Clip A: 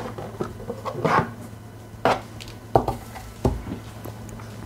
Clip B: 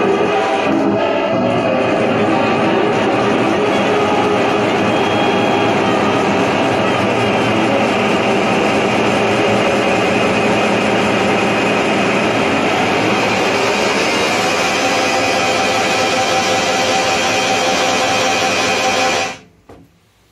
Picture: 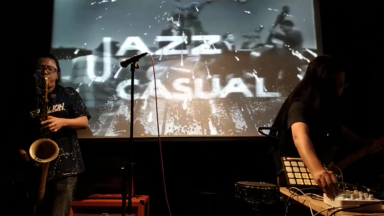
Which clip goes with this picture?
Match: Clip B